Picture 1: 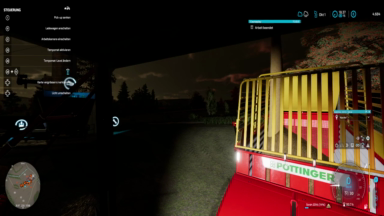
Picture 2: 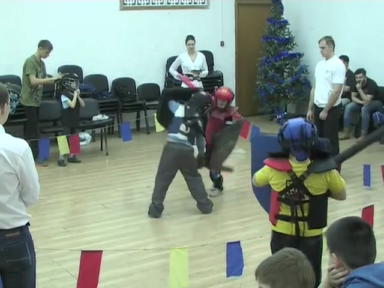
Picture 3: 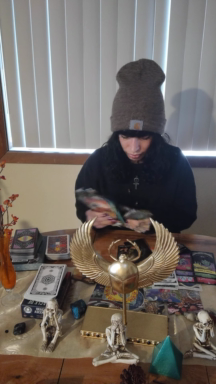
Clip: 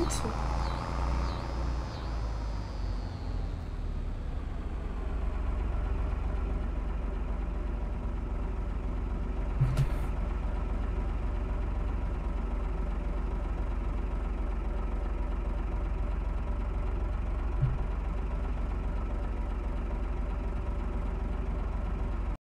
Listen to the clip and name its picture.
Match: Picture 1